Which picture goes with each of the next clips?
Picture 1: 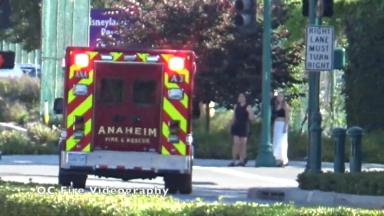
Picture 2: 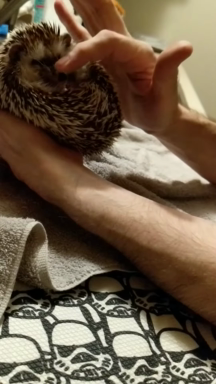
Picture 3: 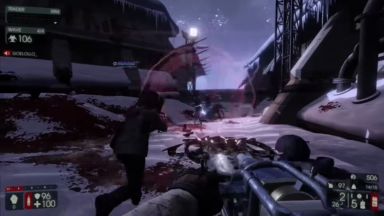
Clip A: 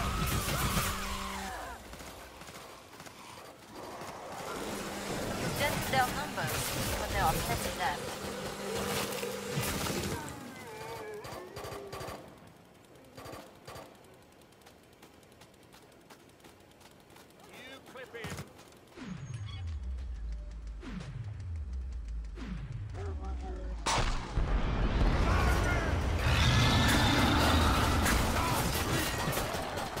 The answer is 3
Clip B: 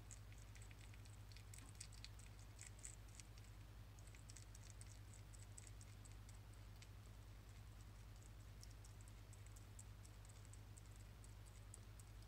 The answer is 2